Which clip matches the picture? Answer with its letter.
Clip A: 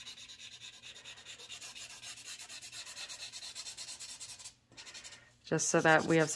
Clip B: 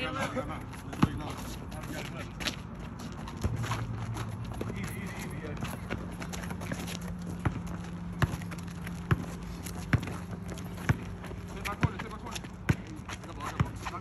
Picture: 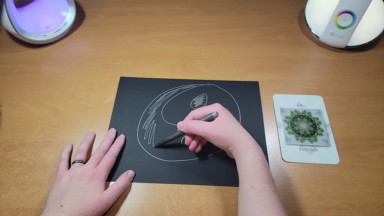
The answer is A